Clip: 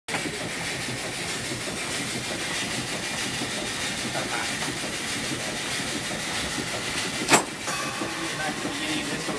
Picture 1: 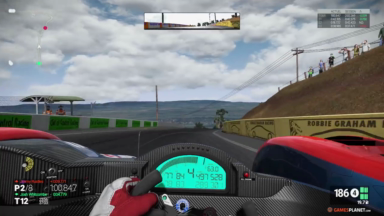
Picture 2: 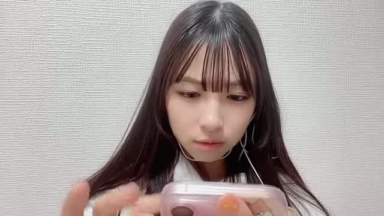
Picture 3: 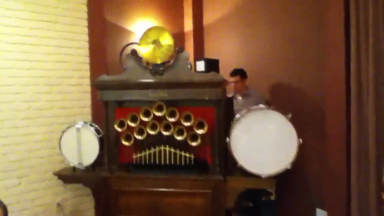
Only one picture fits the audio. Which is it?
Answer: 3